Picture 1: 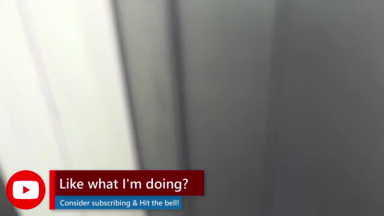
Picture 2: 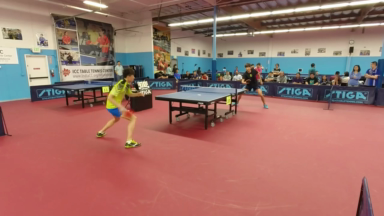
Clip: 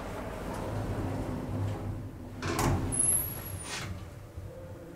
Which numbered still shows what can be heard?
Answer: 1